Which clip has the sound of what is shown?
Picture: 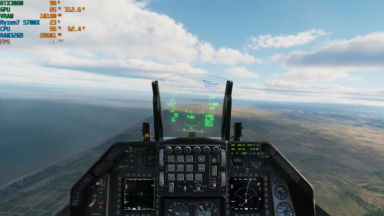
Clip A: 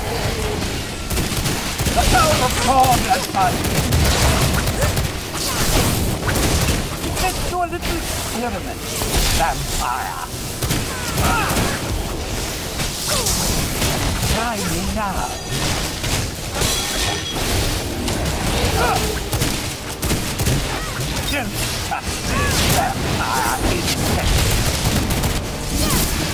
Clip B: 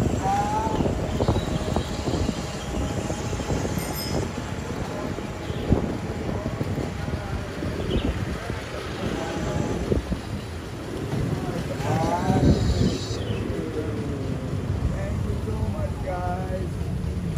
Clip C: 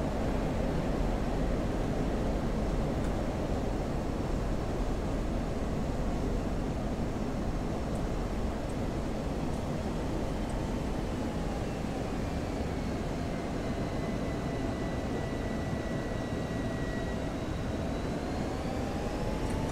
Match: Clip C